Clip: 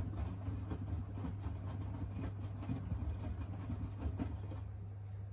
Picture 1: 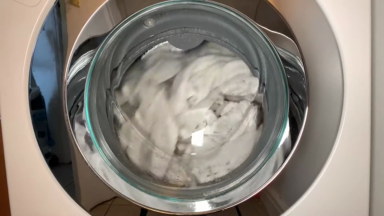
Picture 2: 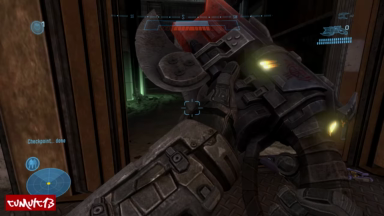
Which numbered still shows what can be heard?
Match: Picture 1